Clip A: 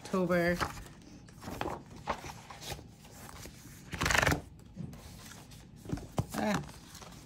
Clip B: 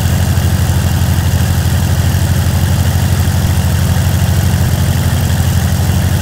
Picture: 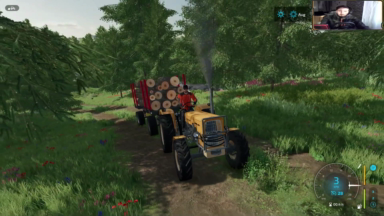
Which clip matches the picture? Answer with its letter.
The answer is B